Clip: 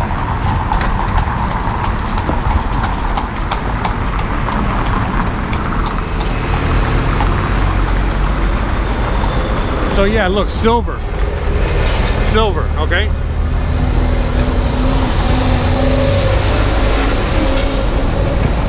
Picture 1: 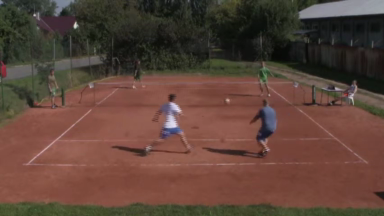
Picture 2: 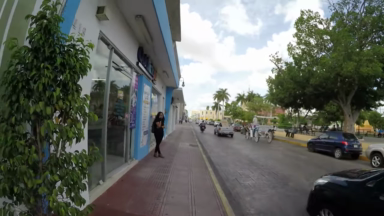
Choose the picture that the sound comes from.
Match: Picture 2